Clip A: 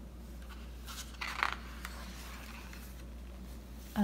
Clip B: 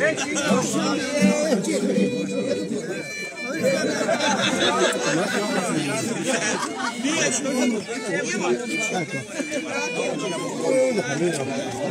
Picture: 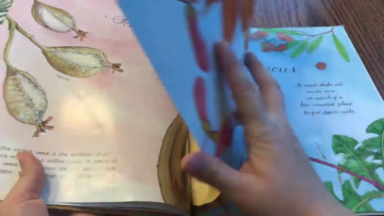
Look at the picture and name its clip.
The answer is A